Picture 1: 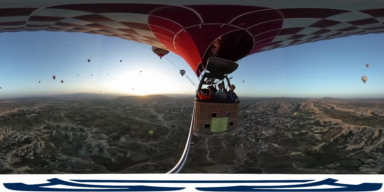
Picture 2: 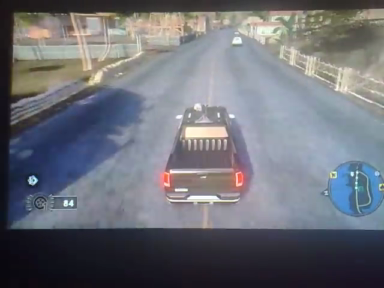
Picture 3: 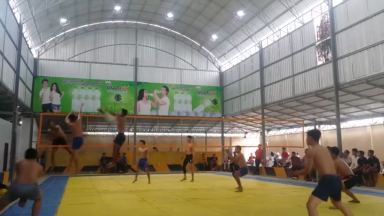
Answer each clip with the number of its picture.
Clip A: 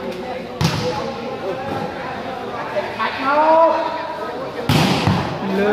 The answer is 3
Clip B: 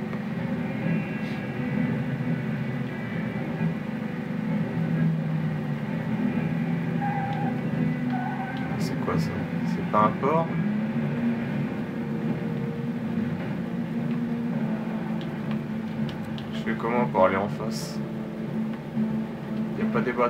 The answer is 2